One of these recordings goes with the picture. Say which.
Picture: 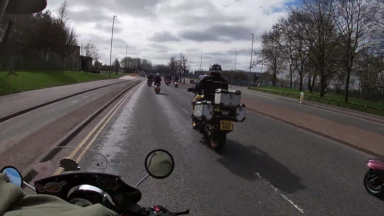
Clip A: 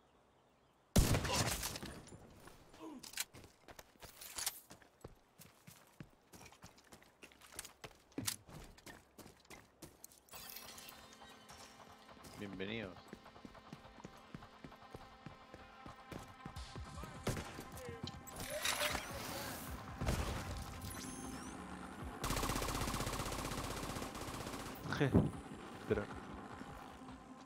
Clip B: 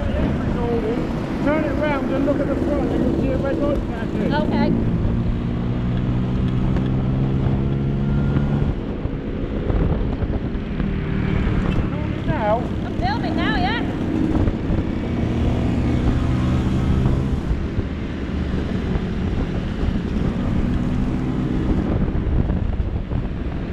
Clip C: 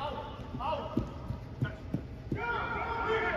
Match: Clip B